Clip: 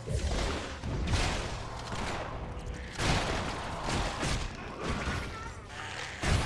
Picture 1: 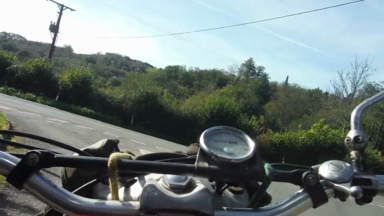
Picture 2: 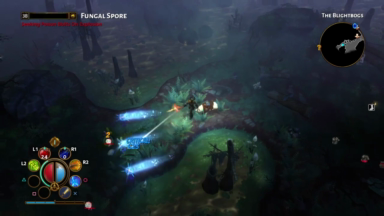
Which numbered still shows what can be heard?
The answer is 2